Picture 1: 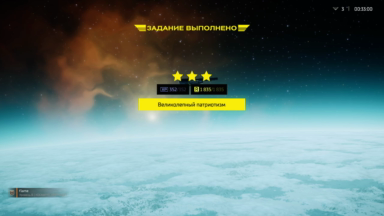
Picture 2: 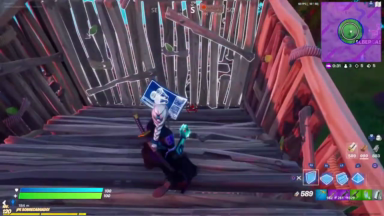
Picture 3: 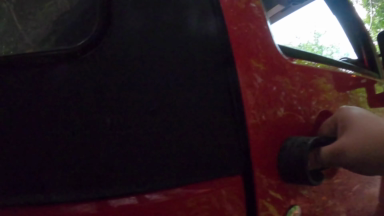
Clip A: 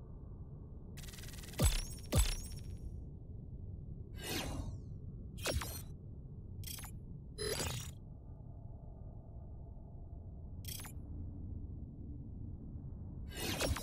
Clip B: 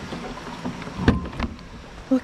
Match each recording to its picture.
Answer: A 1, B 3